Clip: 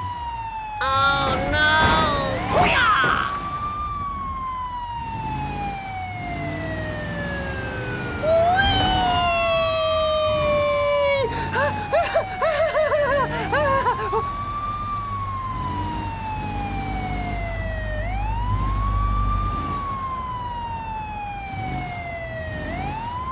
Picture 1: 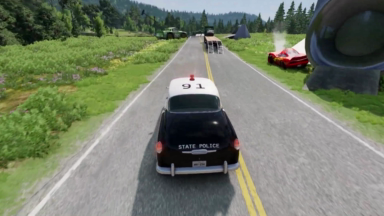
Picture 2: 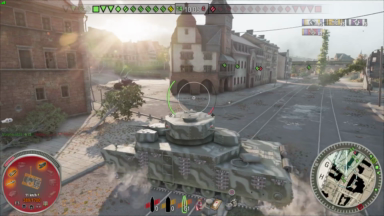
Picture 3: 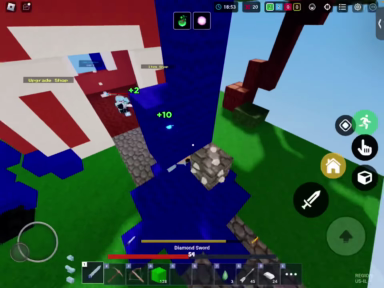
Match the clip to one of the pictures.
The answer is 1